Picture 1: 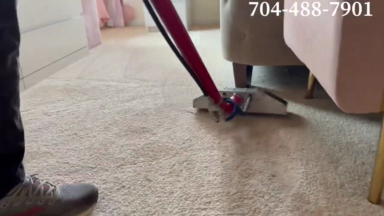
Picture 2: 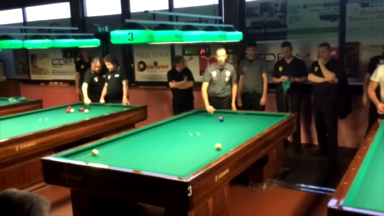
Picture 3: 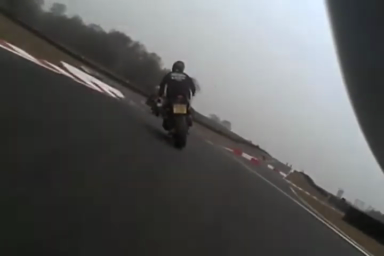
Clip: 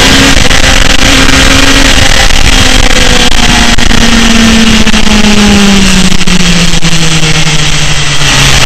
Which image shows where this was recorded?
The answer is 3